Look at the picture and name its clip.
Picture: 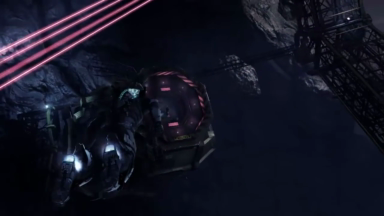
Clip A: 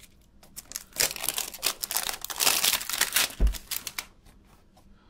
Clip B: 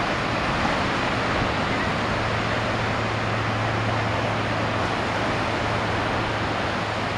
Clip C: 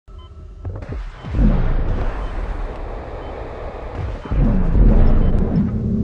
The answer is C